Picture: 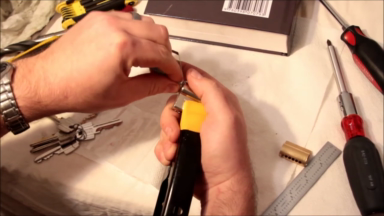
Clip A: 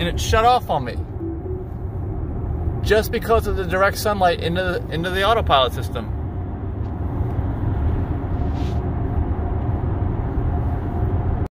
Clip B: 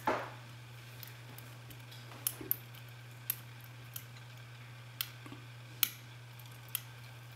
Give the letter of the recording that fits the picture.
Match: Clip B